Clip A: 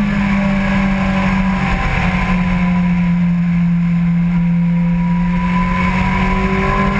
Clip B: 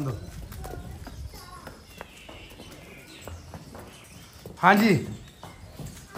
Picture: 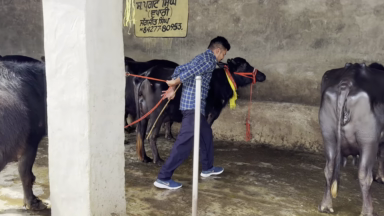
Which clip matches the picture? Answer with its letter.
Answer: B